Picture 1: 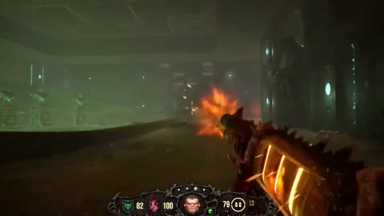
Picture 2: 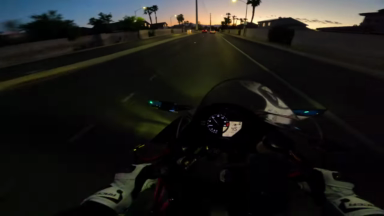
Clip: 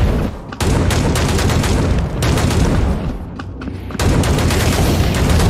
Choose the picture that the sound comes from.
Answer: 1